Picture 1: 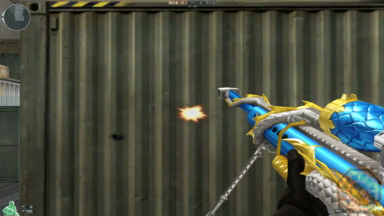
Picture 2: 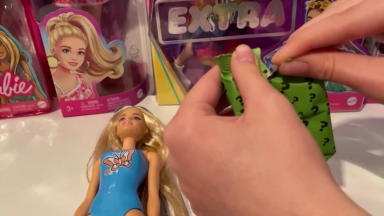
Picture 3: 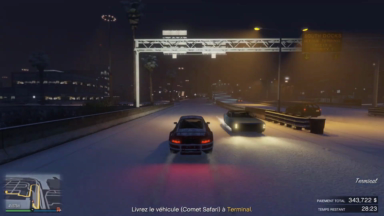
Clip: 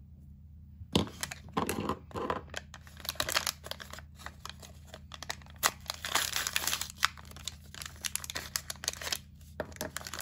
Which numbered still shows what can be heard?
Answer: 2